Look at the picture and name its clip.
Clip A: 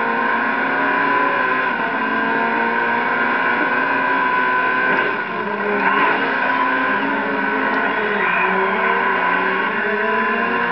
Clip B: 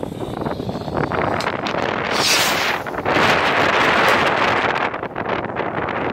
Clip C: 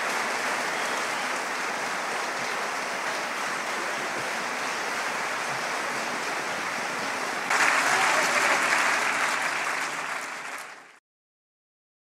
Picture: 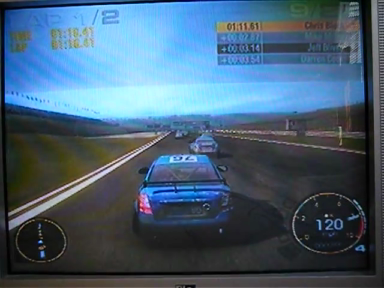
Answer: A